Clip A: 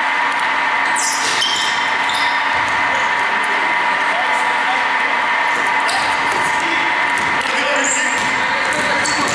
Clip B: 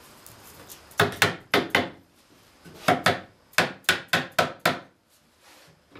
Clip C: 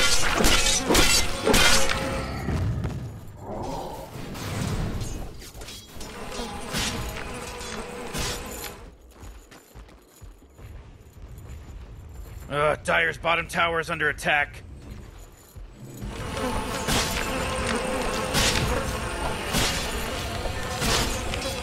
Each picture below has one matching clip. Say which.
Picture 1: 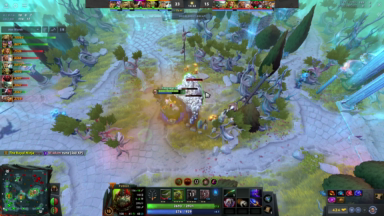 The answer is C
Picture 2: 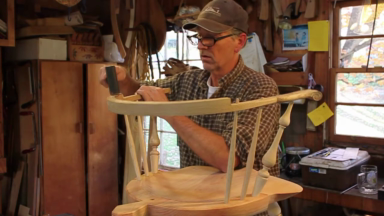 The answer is B